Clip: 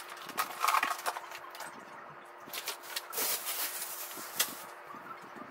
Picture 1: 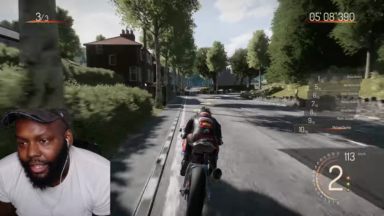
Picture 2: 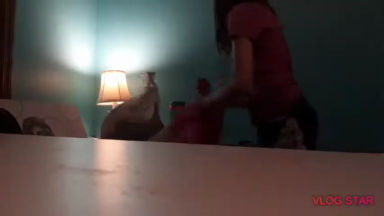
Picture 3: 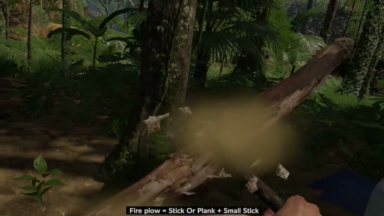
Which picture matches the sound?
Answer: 2